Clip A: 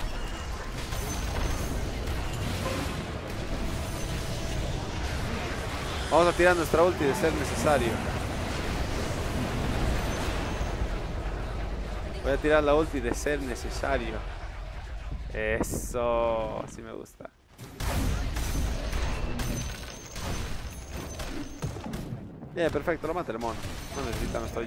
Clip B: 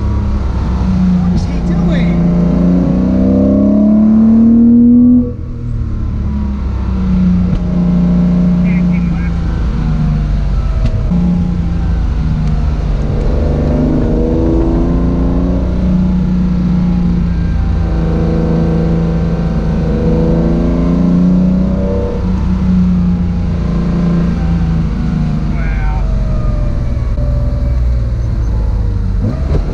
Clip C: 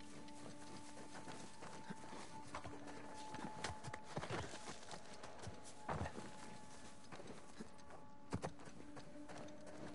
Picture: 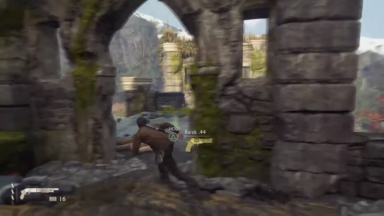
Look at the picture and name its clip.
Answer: C